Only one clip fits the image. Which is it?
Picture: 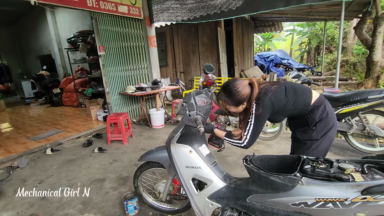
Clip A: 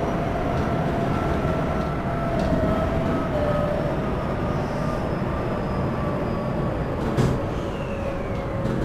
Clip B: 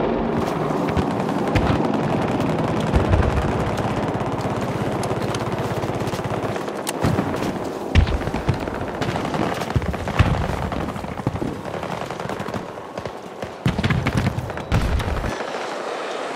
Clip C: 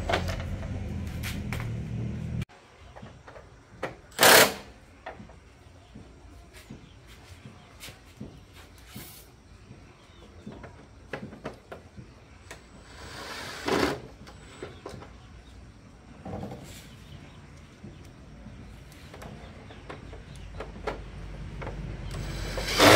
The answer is C